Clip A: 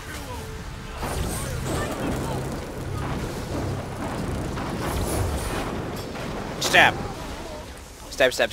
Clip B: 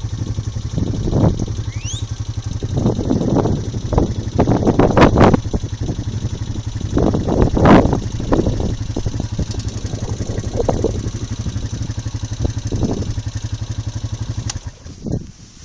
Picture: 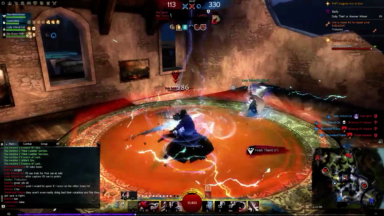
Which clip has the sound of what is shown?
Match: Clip A